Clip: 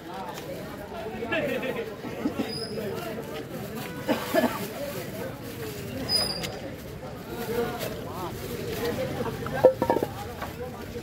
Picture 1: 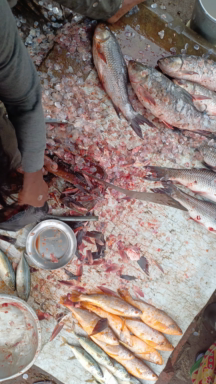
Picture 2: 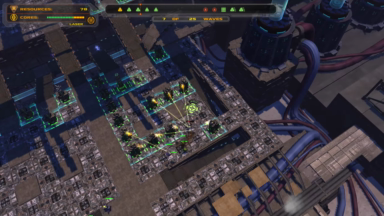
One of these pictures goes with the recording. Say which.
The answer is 1